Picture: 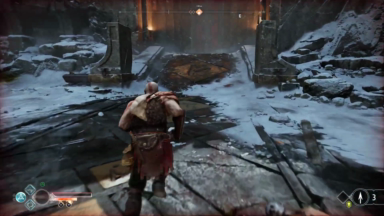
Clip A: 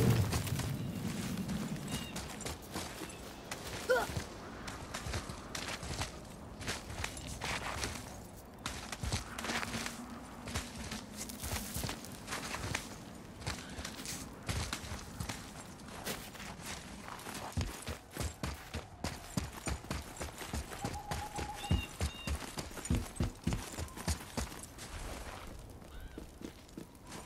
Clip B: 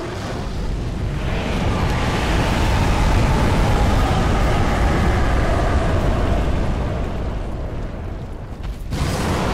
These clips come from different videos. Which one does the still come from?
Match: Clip A